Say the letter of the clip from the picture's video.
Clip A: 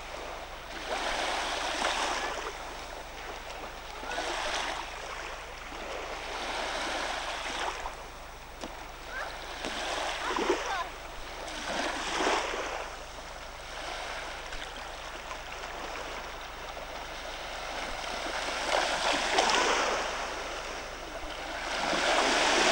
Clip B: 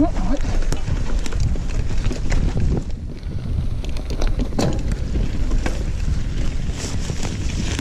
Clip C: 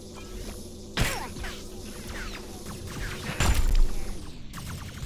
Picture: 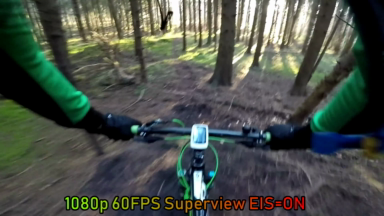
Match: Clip B